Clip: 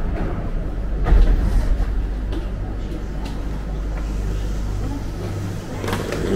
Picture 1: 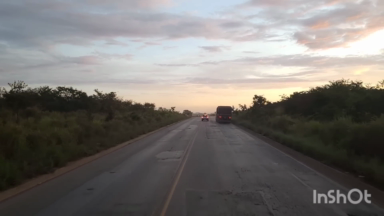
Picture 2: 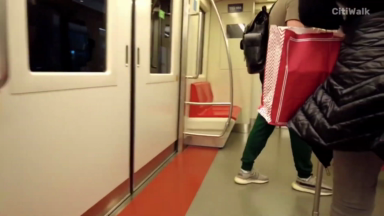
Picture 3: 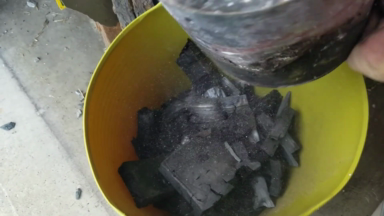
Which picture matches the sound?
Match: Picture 2